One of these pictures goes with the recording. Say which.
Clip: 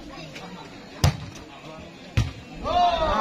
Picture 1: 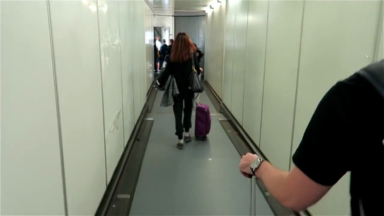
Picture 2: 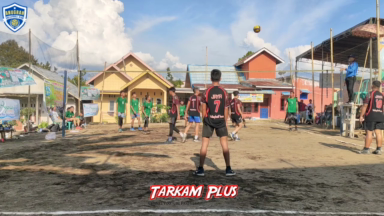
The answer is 2